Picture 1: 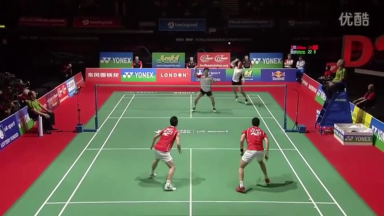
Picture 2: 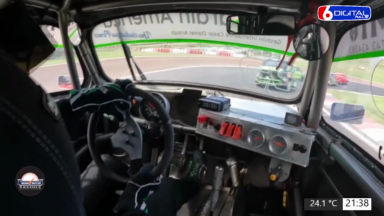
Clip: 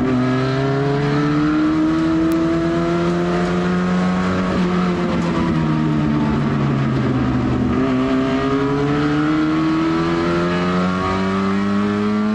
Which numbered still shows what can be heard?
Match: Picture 2